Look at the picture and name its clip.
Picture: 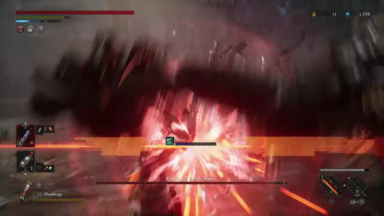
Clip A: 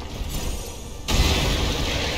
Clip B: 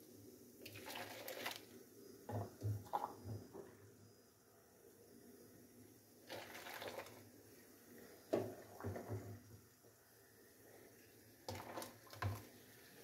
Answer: A